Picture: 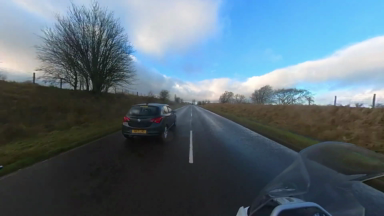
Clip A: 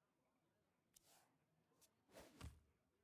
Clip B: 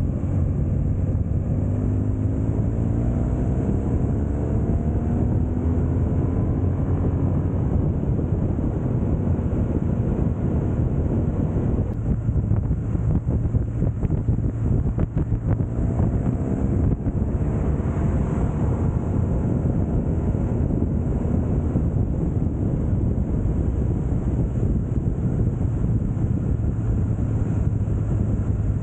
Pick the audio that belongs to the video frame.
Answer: B